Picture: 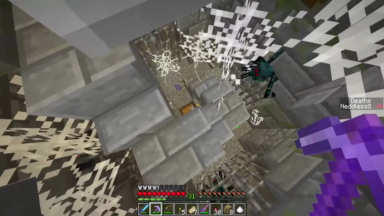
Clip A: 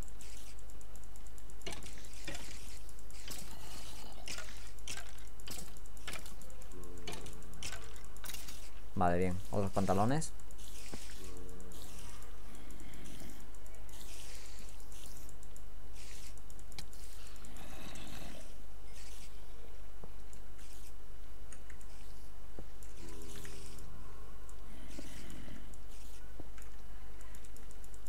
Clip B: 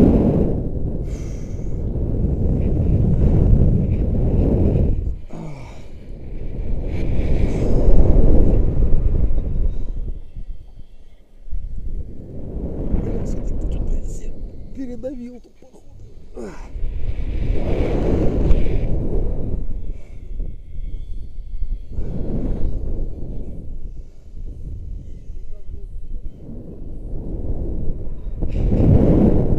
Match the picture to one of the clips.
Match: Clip A